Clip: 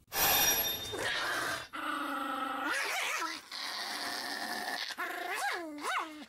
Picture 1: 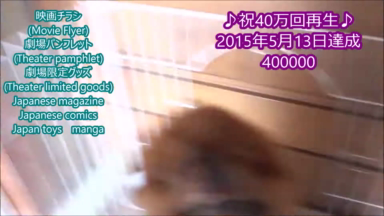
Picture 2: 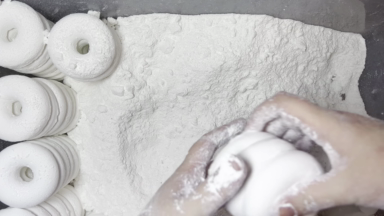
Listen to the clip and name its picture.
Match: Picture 1